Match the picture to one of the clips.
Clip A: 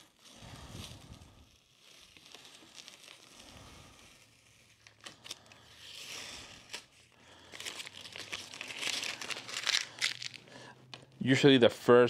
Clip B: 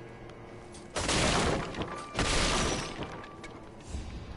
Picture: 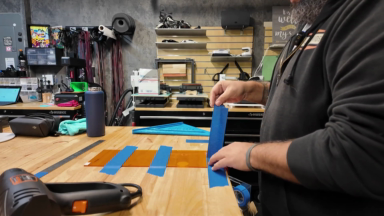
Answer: A